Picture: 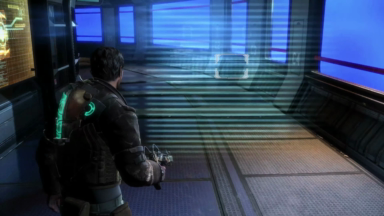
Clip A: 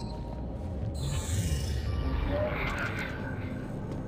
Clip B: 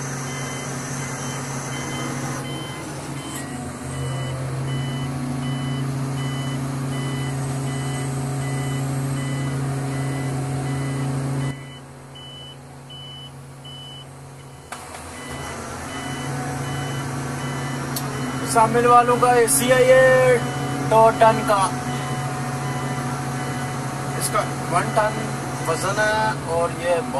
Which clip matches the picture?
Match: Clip A